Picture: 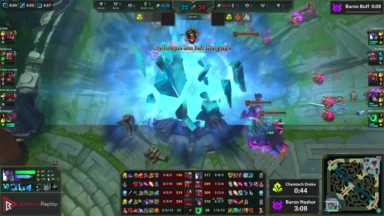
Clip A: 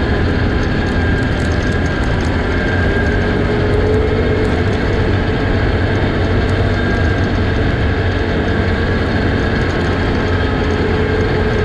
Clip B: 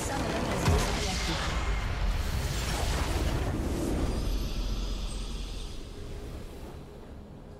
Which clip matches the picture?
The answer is B